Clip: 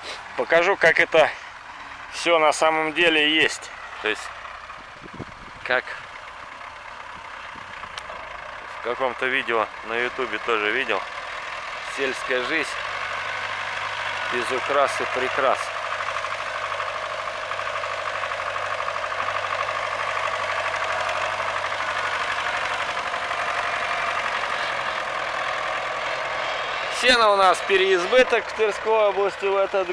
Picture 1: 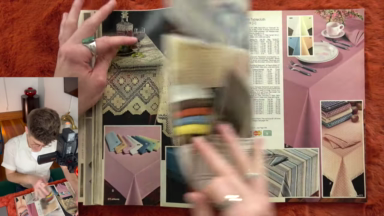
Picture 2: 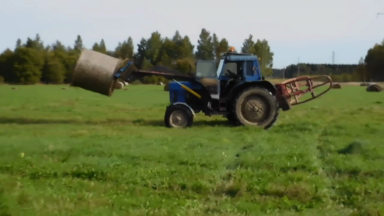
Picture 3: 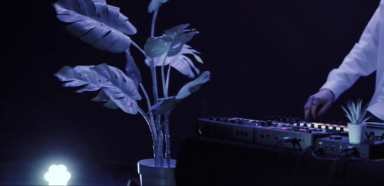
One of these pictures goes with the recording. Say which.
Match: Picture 2